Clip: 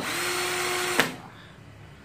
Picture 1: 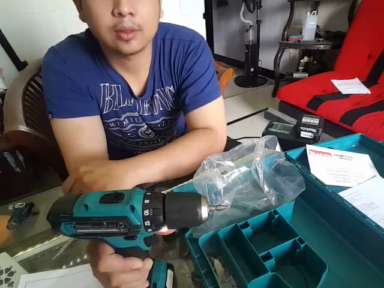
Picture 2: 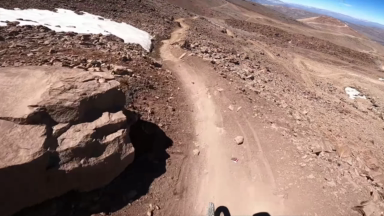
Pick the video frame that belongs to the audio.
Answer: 1